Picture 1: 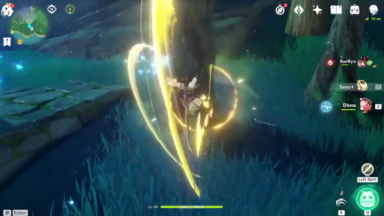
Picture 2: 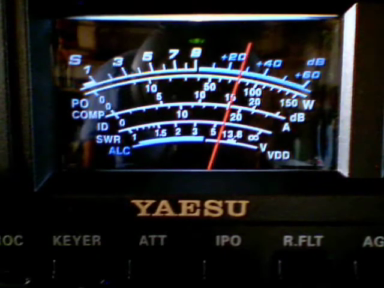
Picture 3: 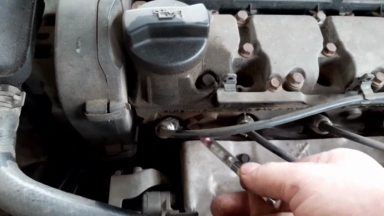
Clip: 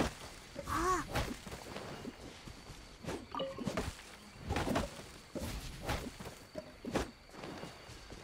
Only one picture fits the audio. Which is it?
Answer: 1